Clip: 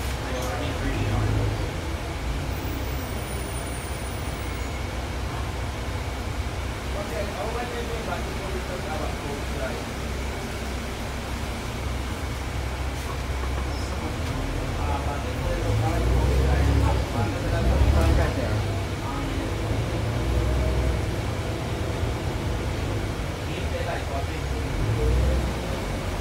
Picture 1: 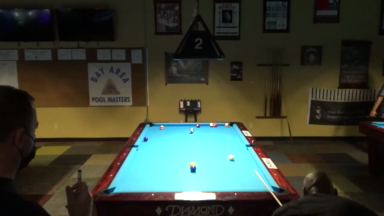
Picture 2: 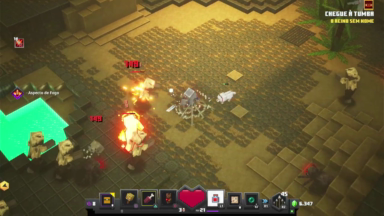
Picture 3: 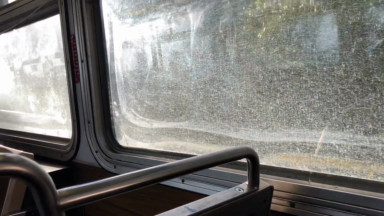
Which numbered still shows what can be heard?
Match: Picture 3